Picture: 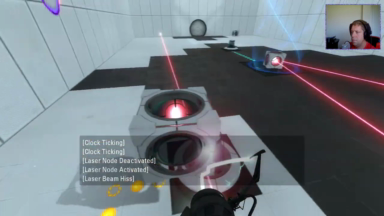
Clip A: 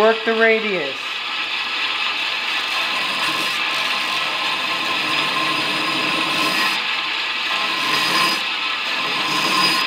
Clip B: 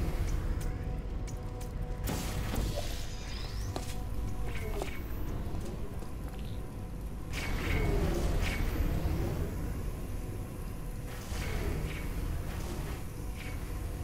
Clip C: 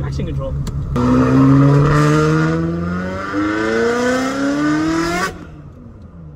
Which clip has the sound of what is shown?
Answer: B